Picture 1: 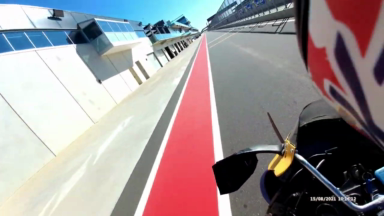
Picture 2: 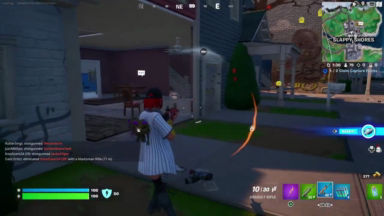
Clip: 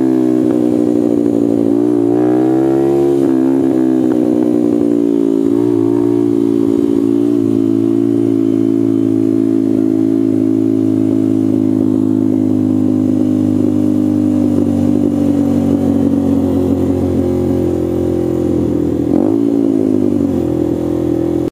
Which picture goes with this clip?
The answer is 1